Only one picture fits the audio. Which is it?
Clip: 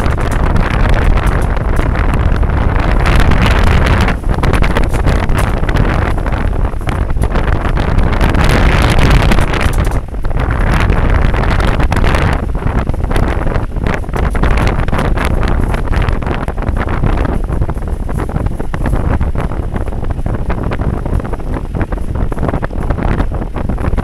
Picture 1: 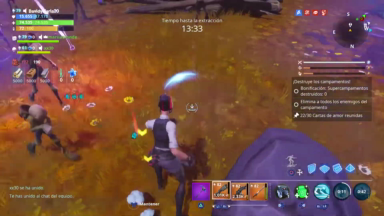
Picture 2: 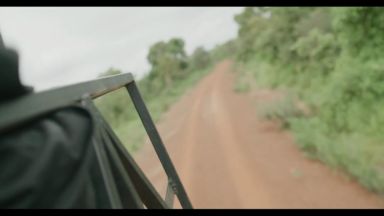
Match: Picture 2